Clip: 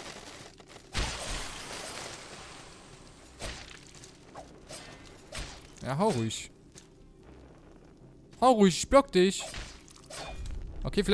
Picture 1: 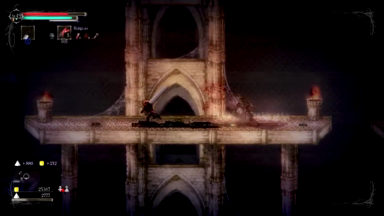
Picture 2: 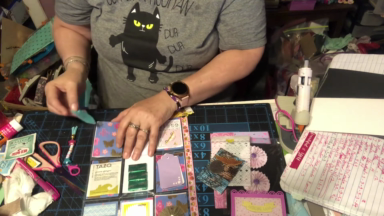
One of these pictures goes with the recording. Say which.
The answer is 1